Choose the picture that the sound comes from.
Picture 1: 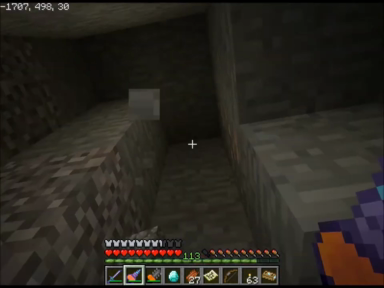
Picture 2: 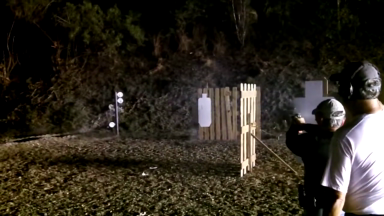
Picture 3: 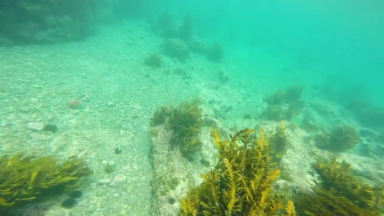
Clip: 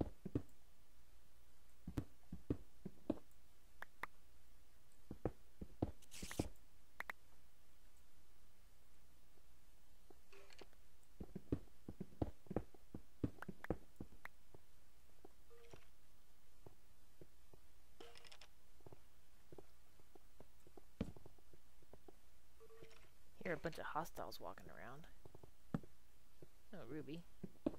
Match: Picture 1